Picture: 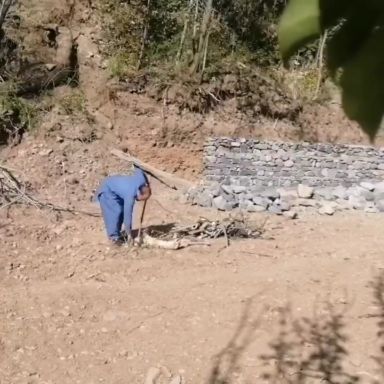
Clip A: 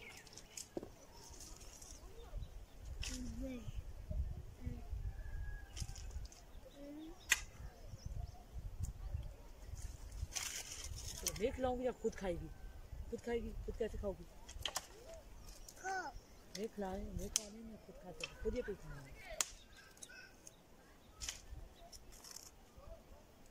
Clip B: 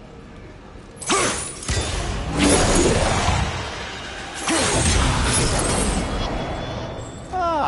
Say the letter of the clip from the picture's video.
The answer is A